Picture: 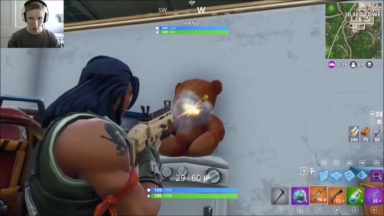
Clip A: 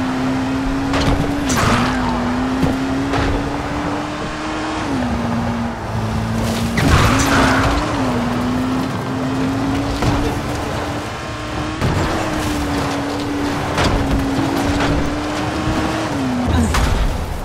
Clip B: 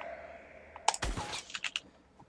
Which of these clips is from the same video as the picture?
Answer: B